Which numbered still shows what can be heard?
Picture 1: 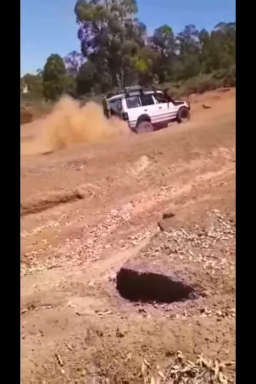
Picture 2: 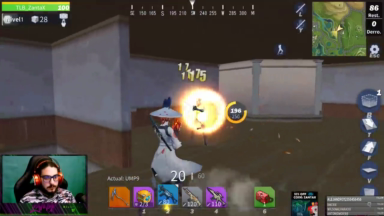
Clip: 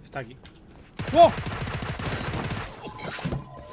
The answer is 2